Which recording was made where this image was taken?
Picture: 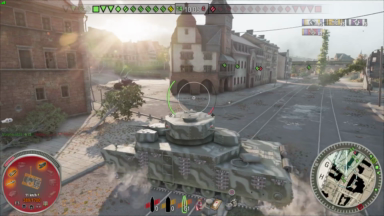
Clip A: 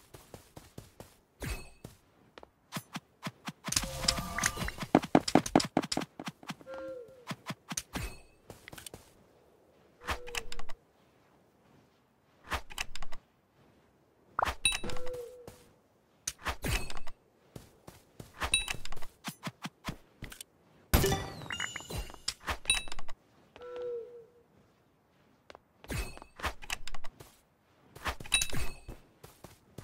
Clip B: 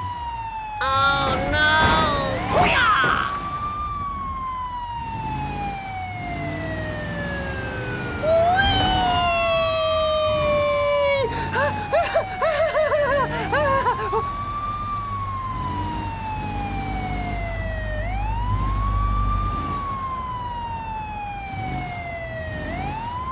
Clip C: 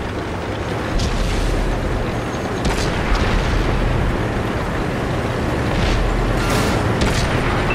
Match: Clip C